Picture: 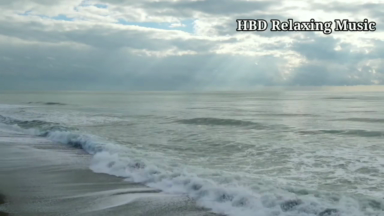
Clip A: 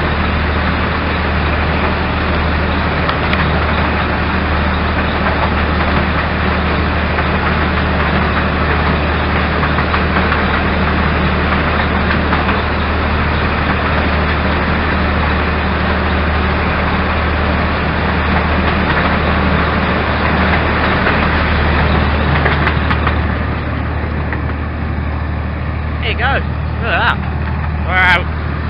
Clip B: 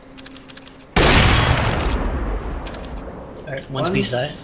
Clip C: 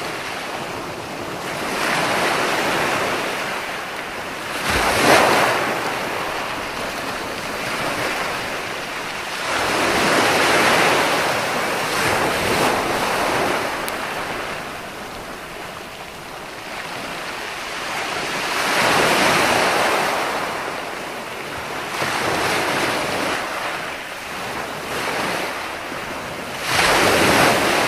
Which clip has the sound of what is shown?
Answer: C